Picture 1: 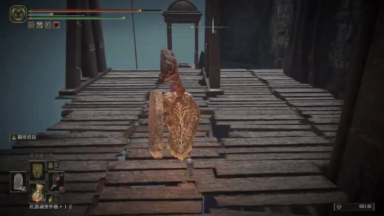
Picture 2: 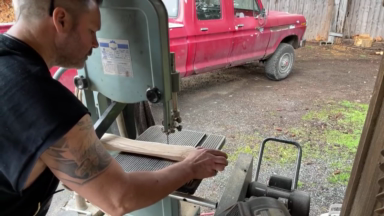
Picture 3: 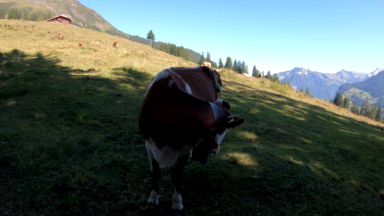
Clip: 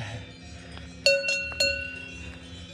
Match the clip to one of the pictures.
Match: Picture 3